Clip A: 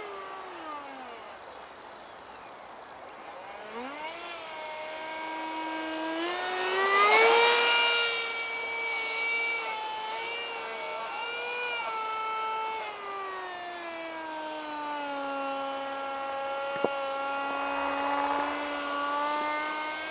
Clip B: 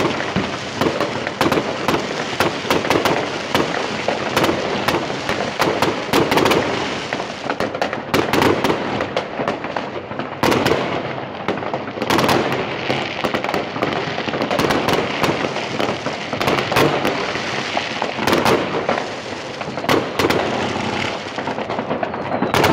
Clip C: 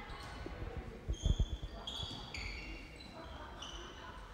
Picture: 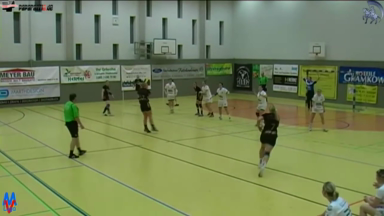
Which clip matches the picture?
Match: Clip C